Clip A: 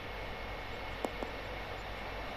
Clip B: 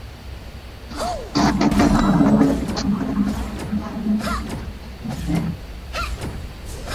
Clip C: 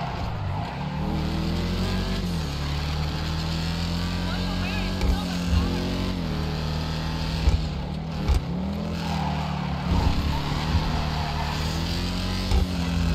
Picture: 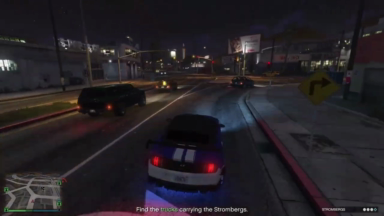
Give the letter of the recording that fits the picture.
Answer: C